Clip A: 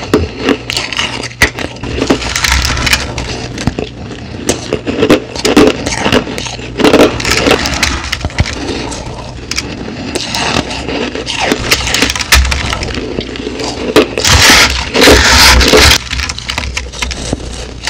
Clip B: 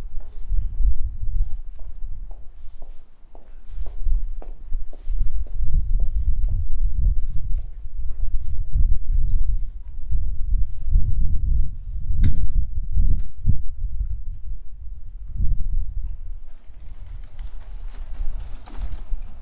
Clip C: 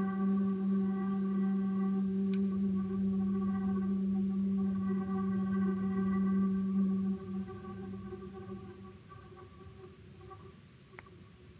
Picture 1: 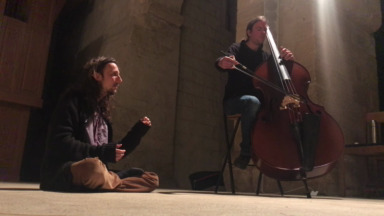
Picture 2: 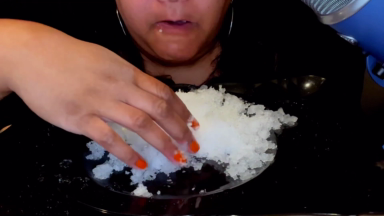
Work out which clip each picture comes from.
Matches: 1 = C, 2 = A